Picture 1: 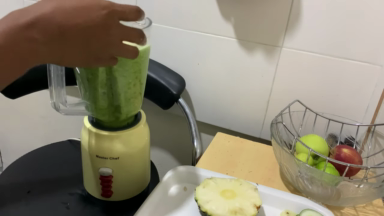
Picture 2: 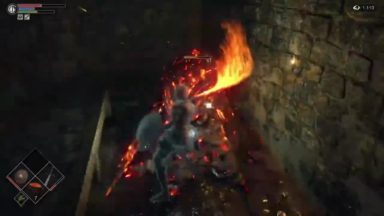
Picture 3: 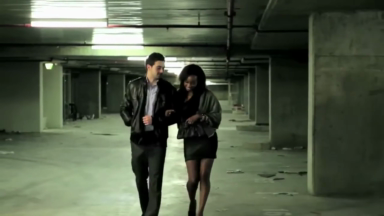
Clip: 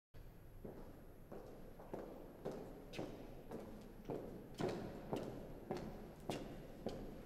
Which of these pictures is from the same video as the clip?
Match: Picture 3